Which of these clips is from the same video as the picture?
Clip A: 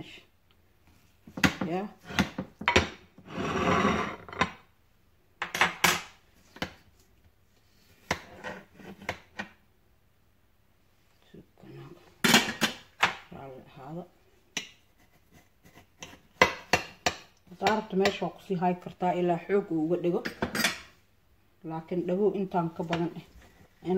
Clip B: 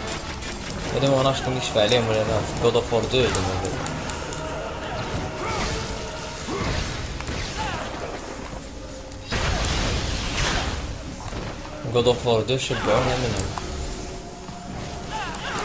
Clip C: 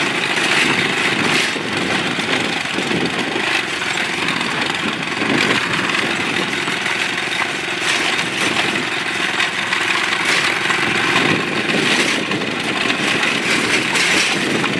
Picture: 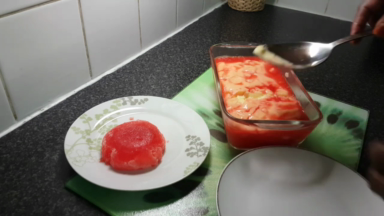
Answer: A